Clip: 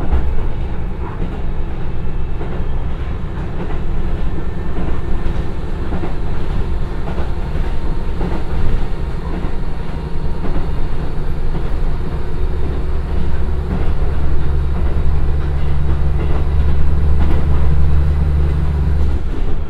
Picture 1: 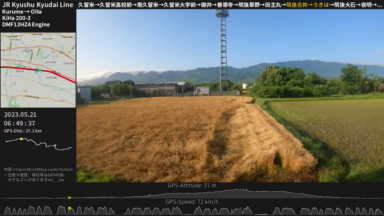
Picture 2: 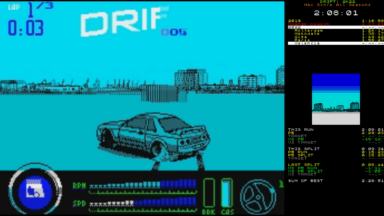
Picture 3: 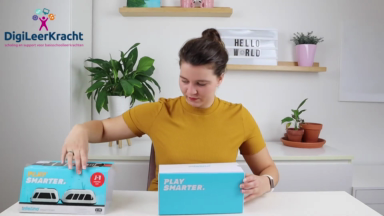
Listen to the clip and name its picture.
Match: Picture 1